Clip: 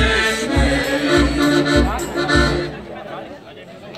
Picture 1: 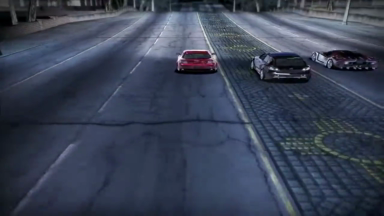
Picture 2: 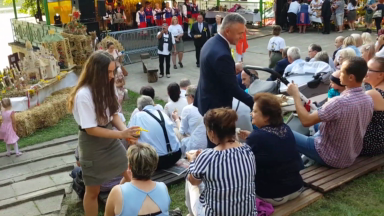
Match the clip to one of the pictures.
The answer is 2